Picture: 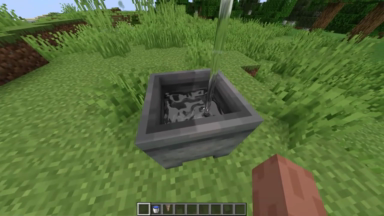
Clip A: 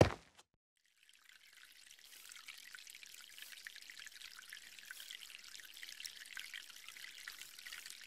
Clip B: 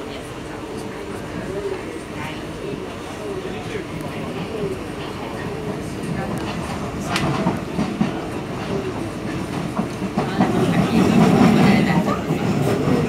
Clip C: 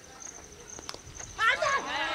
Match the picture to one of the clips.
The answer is A